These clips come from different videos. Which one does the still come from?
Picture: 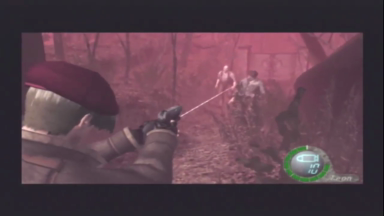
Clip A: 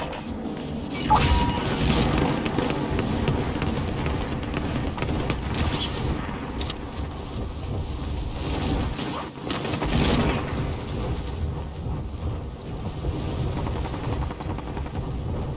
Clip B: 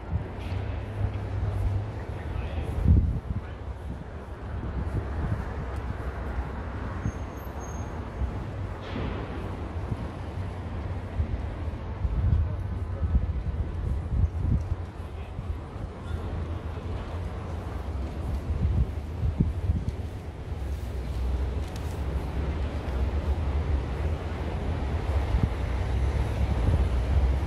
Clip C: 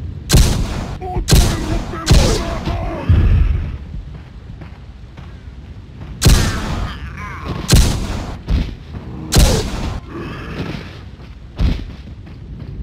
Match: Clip C